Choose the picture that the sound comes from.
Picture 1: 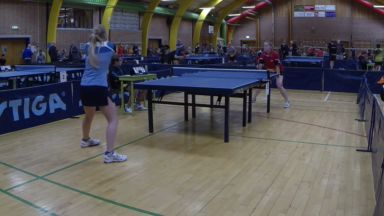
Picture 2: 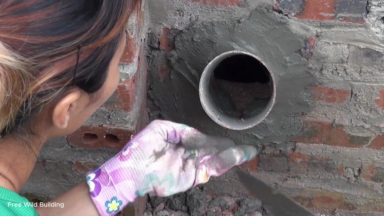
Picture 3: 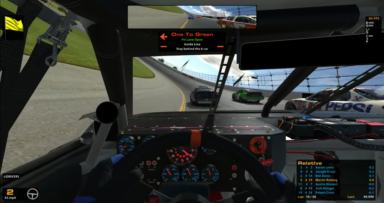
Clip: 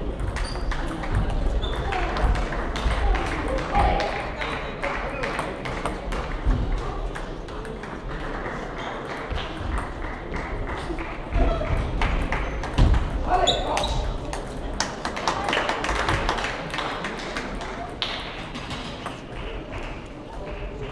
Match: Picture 1